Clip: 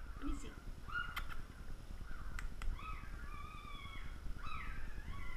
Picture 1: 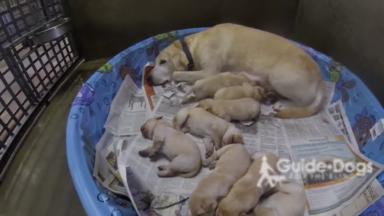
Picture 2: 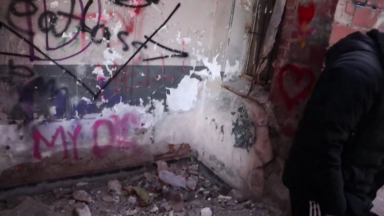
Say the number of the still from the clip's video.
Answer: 1